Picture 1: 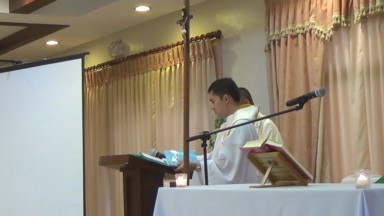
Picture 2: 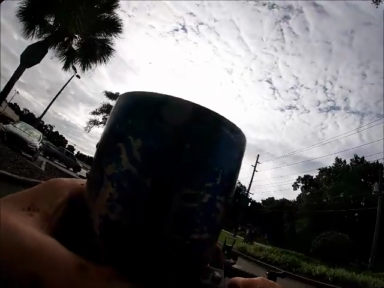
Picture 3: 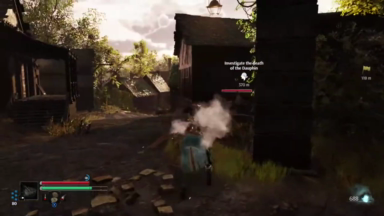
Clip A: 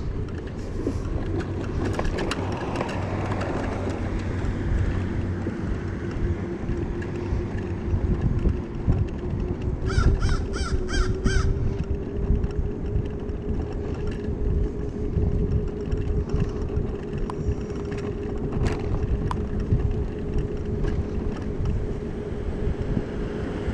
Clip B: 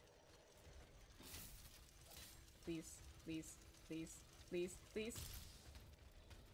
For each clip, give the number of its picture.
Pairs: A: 2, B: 3